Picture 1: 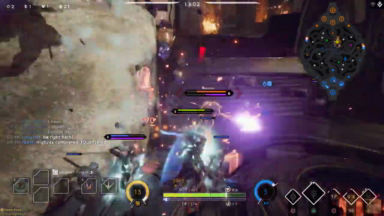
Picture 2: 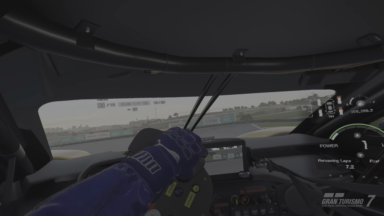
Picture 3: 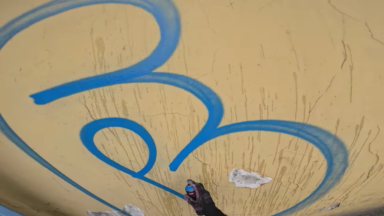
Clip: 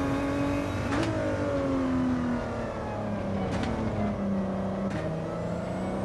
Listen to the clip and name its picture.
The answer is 2